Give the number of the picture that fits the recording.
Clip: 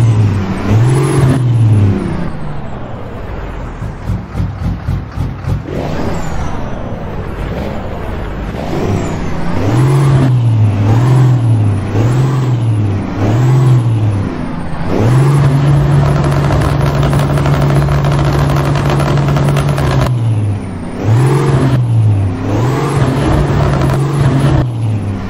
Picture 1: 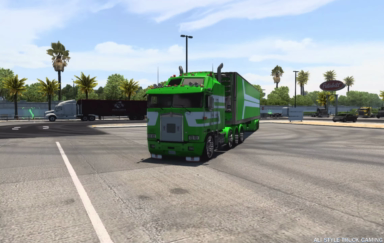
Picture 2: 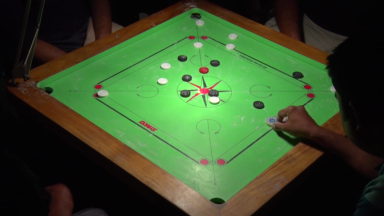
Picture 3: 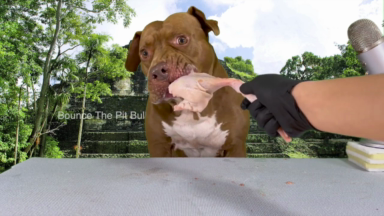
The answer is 1